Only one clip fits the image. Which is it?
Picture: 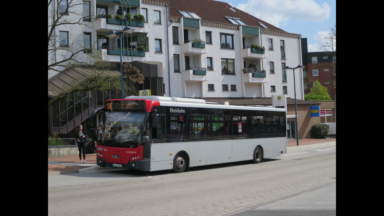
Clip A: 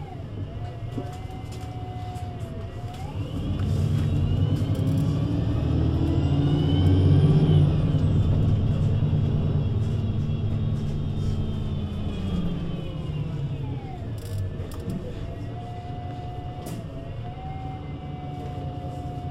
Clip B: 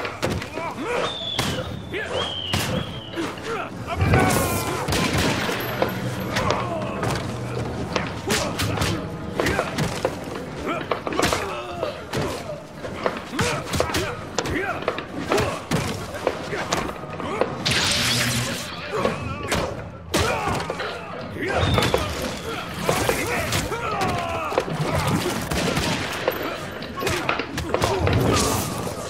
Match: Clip A